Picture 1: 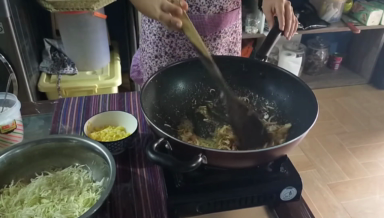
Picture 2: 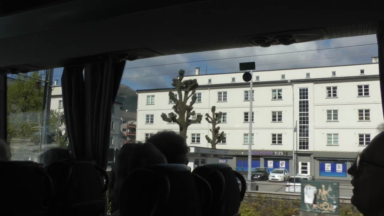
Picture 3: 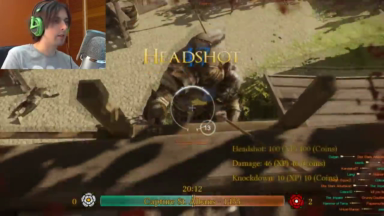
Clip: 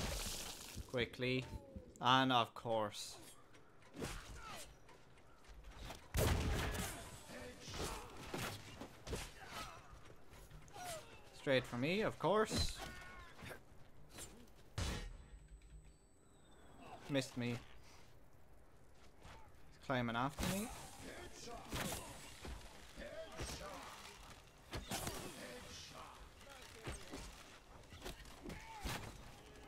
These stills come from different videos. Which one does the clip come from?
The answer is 3